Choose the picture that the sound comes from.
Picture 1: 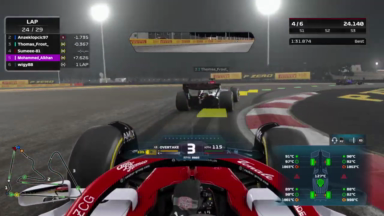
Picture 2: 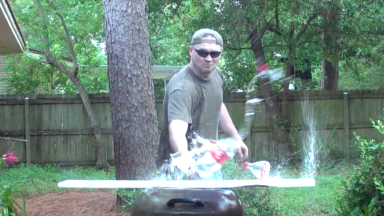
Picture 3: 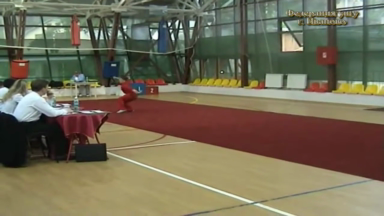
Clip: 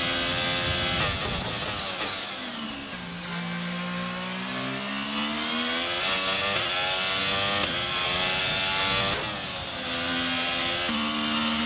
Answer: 1